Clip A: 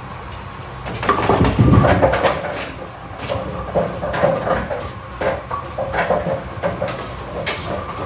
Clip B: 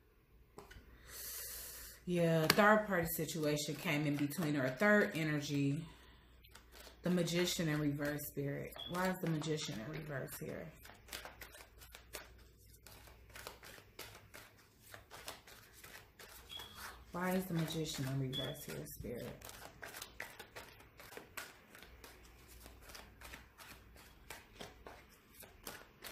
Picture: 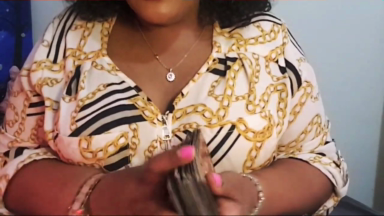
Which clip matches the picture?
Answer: B